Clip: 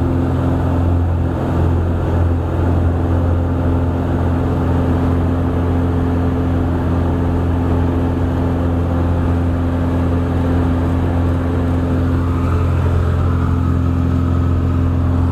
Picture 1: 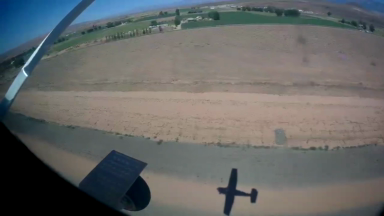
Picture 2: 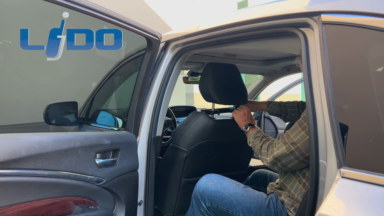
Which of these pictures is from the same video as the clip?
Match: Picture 1